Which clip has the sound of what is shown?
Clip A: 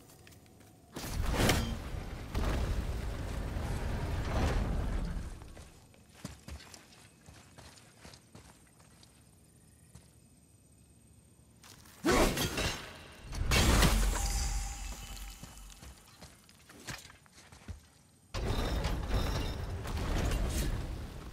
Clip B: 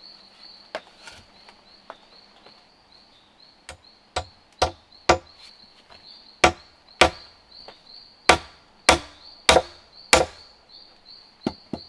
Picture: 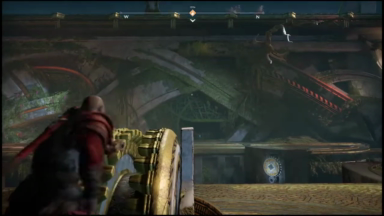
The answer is A